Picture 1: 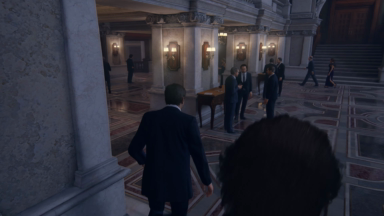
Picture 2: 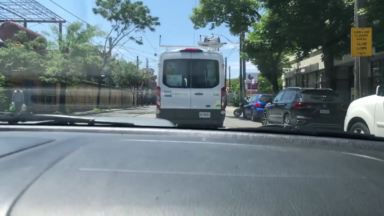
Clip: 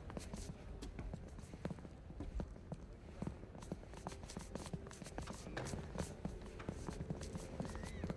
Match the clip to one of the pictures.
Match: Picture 1